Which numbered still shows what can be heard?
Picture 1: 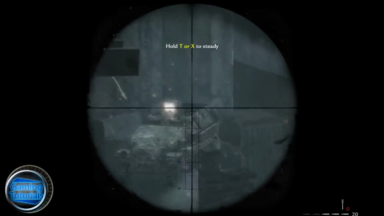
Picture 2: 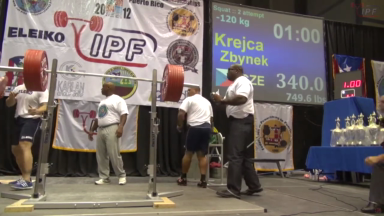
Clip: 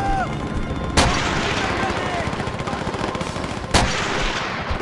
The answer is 1